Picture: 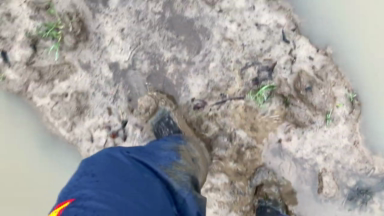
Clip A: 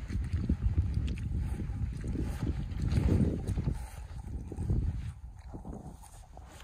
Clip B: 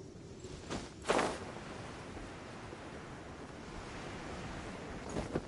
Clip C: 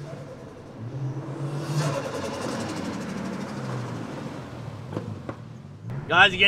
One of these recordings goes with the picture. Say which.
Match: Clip A